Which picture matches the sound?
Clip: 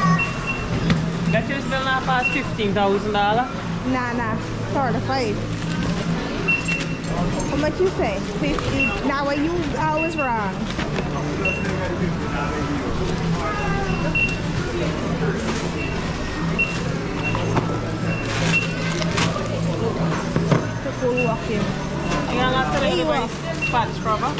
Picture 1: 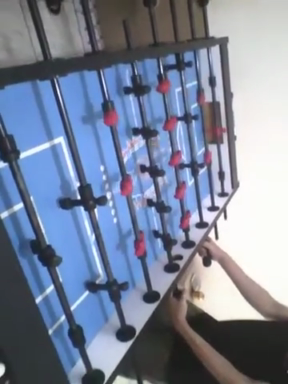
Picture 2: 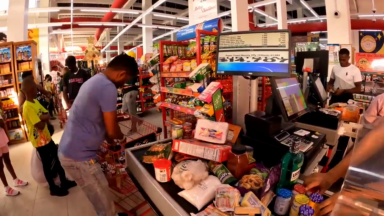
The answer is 2